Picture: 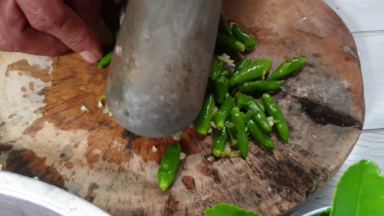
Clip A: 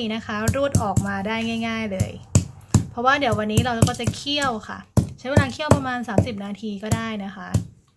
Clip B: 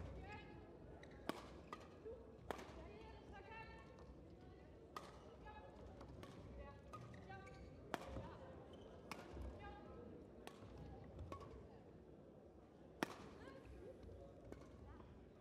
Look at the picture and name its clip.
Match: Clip A